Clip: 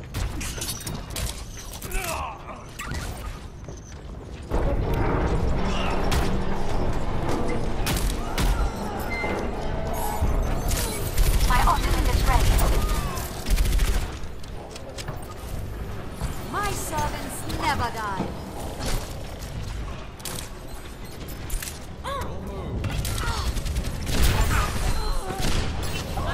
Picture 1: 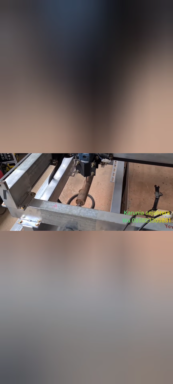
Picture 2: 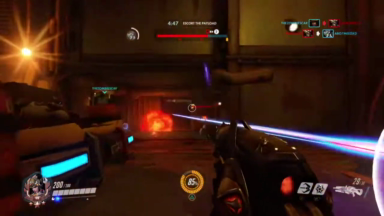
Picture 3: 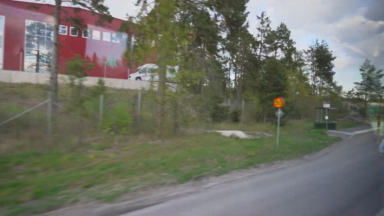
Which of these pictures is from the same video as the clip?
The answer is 2